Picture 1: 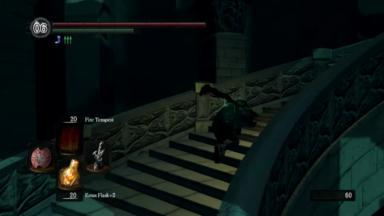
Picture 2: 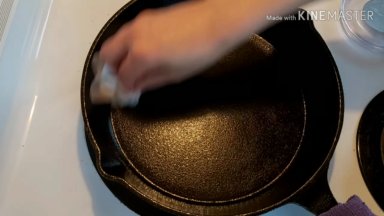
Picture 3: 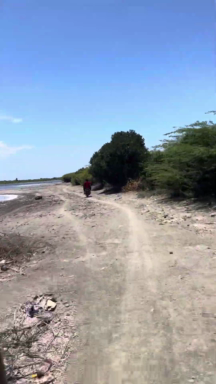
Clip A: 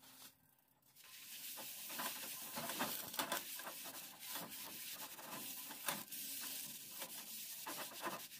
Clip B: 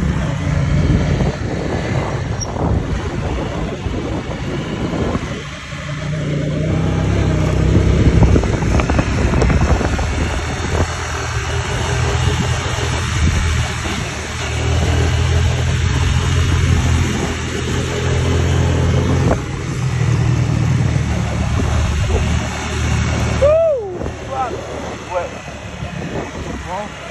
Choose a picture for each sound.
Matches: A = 2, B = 3